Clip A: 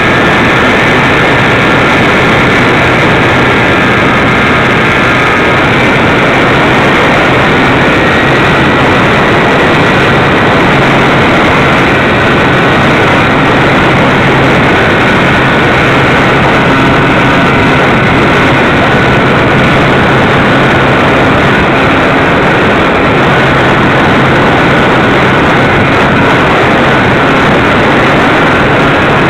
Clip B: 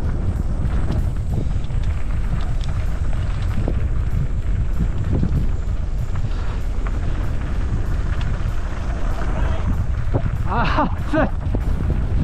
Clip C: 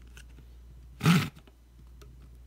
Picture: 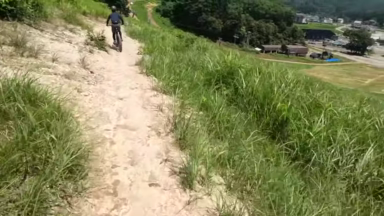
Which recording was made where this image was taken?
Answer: B